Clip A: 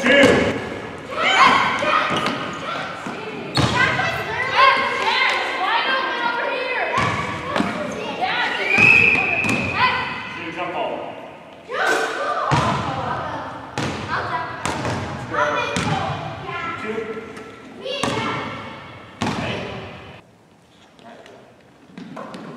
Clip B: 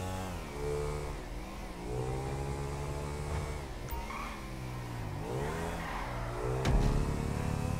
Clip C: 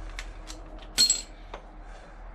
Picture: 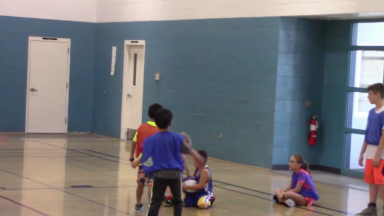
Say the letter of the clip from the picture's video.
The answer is A